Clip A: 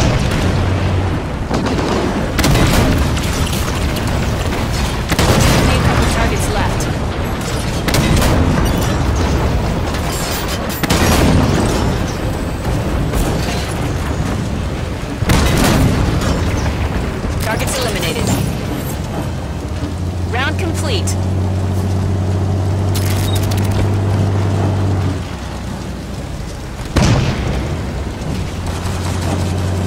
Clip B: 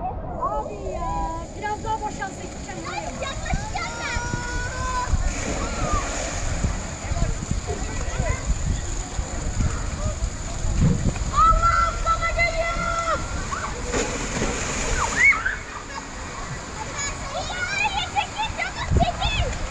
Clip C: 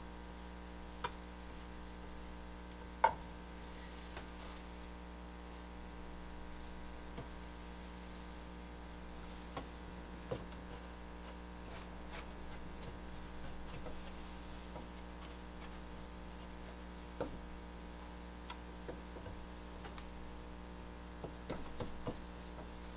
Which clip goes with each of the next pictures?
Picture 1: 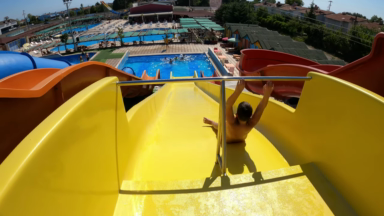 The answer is B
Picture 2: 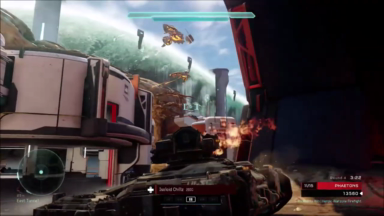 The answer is A